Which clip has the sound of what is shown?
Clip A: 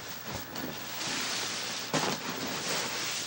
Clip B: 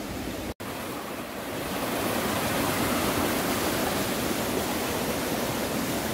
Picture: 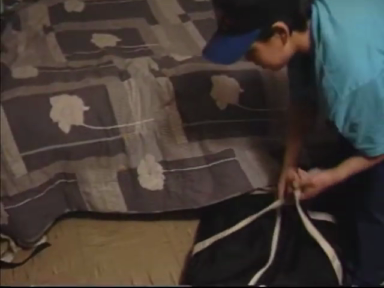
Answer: A